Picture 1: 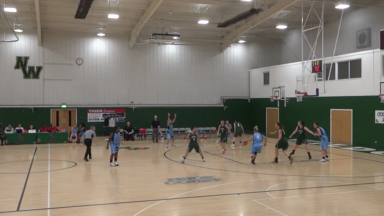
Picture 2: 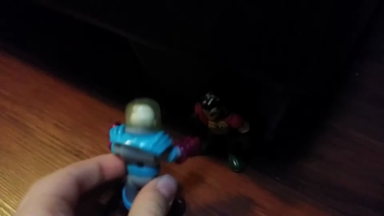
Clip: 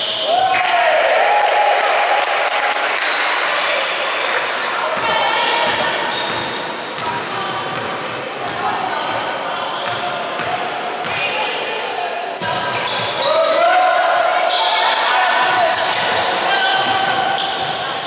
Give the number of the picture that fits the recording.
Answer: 1